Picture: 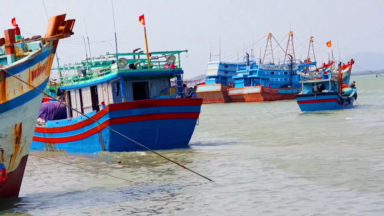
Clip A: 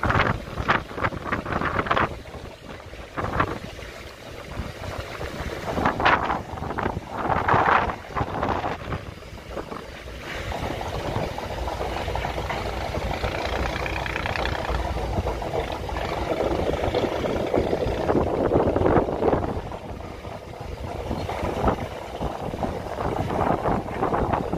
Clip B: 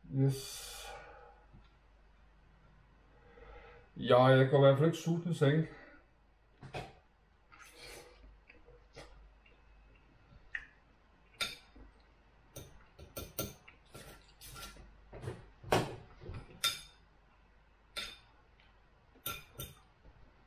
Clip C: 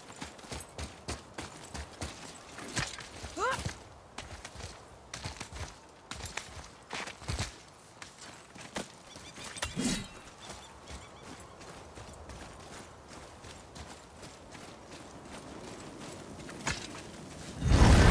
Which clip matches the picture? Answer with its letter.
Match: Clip A